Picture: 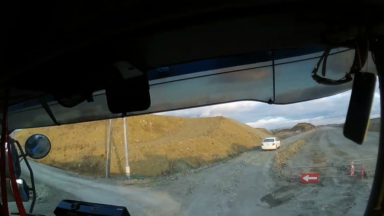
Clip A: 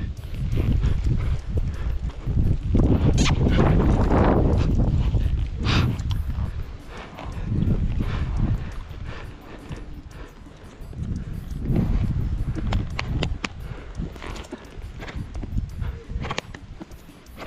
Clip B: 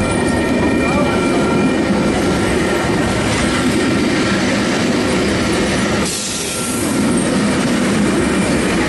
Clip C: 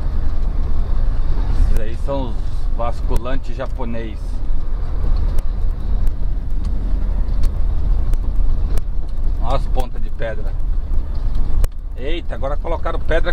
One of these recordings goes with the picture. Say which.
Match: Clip C